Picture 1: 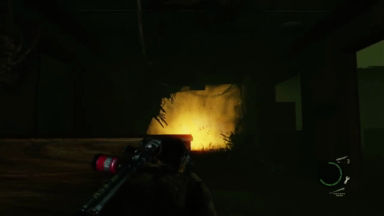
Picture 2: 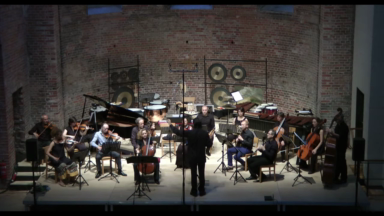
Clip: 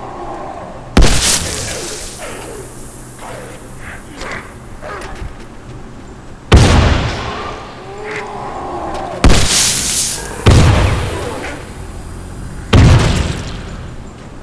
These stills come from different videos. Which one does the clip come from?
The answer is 1